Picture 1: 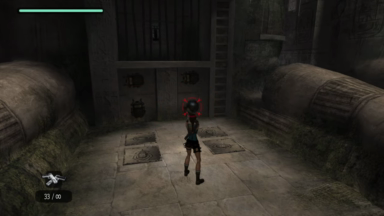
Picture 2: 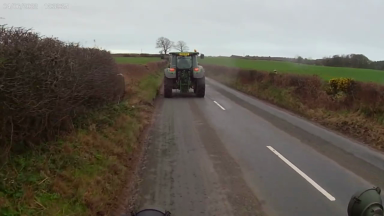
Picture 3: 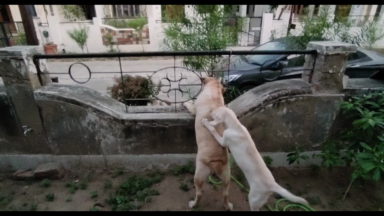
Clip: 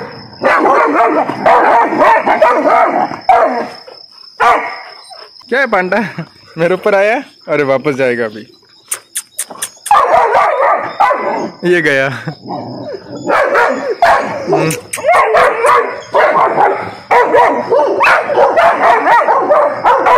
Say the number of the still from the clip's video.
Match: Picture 3